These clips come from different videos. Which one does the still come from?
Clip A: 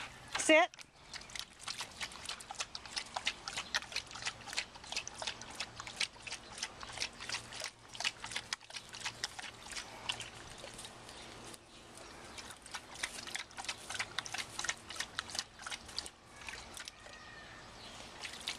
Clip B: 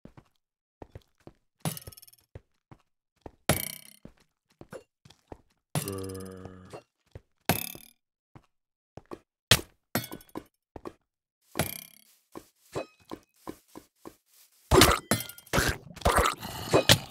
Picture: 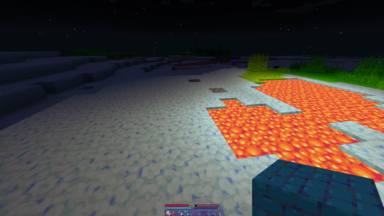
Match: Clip B